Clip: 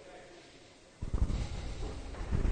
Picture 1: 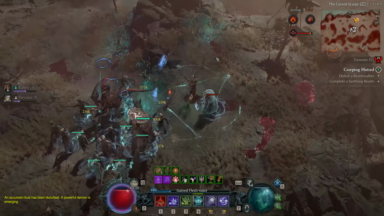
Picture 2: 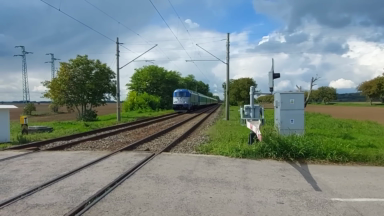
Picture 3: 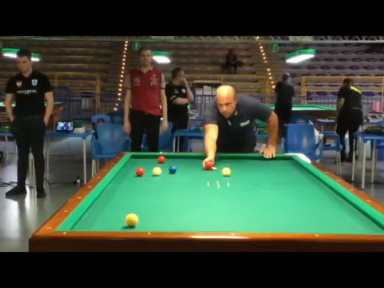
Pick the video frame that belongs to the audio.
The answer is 3